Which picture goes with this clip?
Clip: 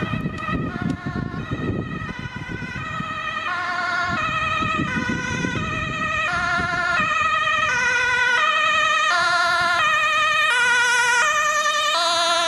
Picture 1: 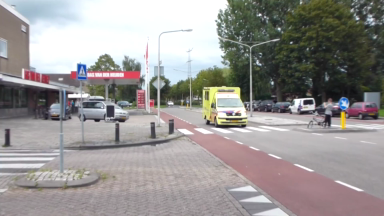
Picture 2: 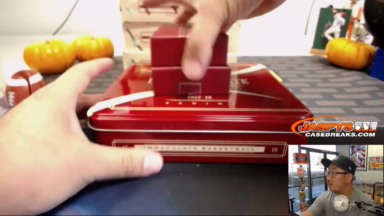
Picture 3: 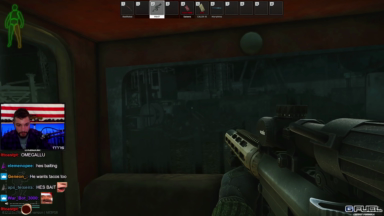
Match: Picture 1